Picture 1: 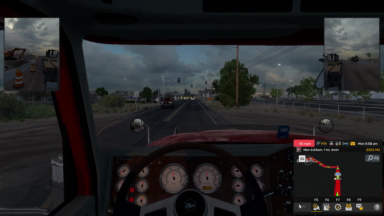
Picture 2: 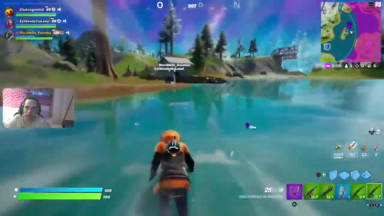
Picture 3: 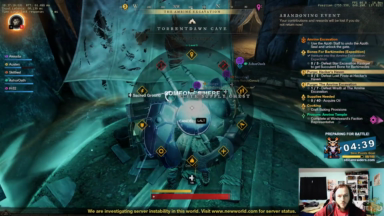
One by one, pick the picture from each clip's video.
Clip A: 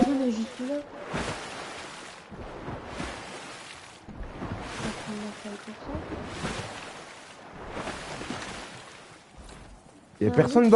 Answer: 2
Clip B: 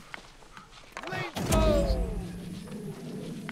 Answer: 3